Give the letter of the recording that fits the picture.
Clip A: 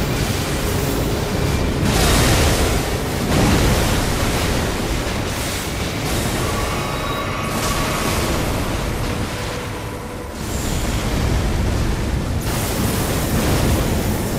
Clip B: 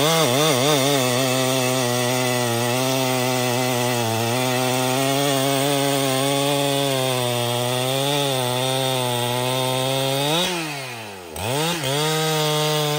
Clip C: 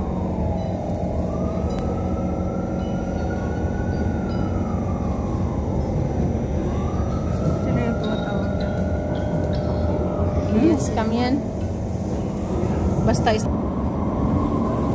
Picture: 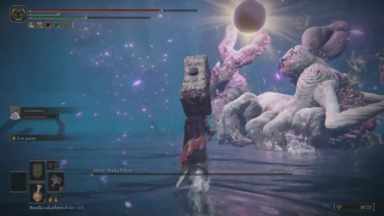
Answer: A